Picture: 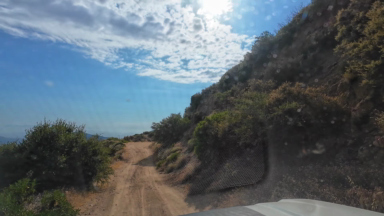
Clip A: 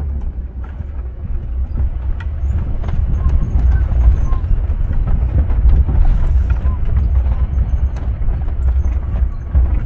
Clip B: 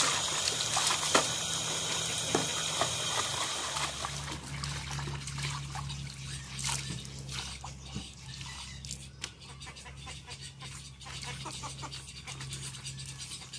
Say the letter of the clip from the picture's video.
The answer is A